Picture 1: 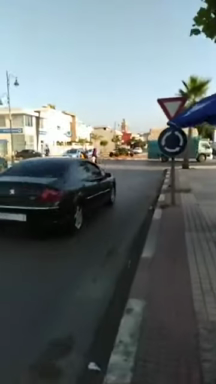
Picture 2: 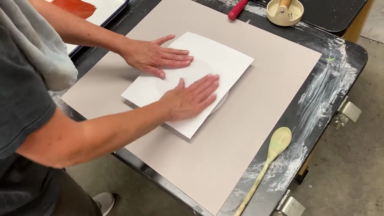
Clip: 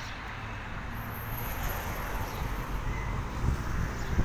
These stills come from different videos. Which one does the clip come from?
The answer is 1